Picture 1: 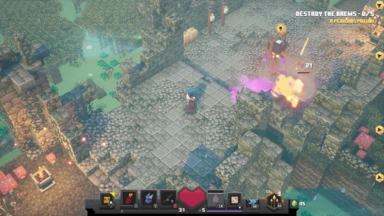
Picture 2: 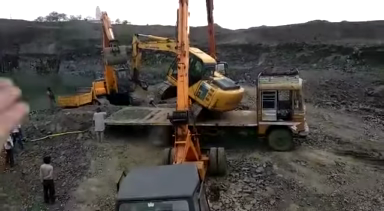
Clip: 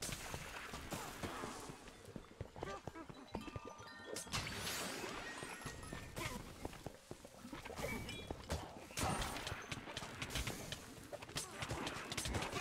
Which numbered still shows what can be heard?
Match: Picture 1